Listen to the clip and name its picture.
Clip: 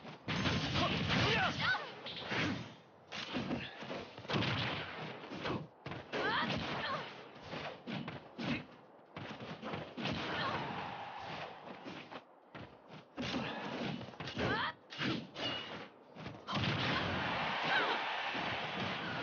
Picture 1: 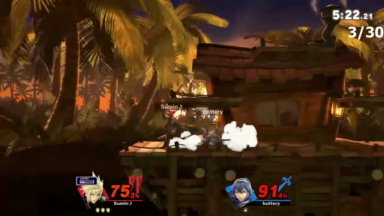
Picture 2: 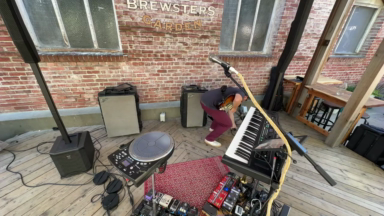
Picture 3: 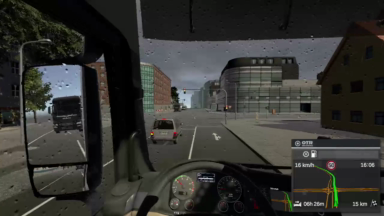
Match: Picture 1